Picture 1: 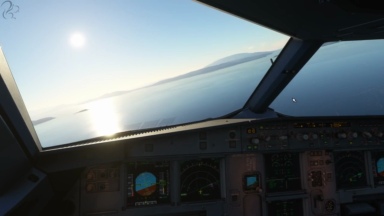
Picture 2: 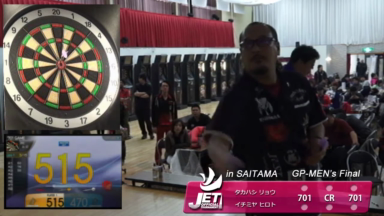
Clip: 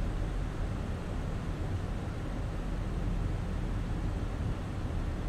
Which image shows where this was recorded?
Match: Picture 1